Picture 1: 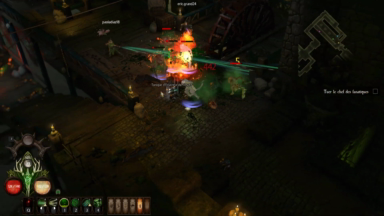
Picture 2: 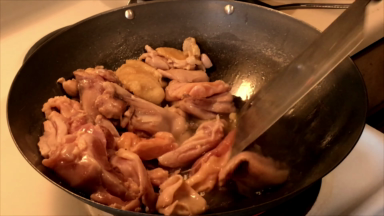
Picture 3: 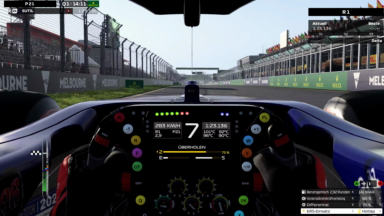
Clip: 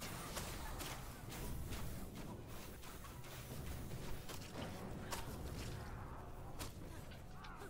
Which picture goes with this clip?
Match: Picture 1